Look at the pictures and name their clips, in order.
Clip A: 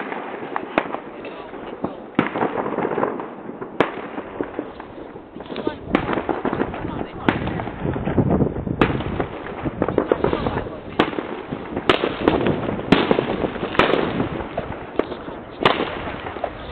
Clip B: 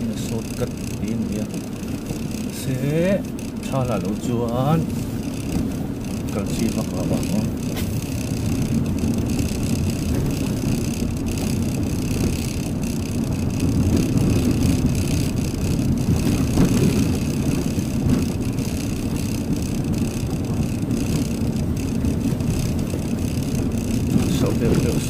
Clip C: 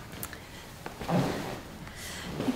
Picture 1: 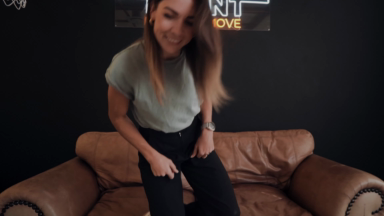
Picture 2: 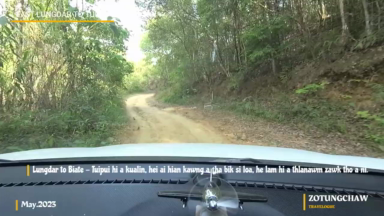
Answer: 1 C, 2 B